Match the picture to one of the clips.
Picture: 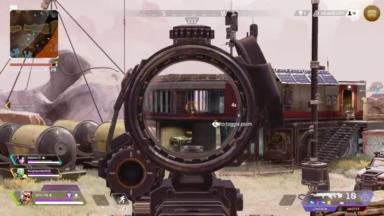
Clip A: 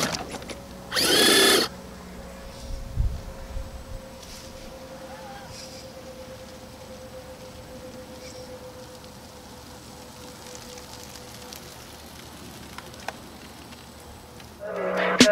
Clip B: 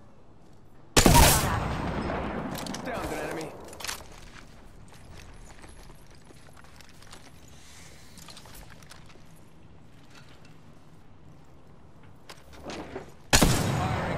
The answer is B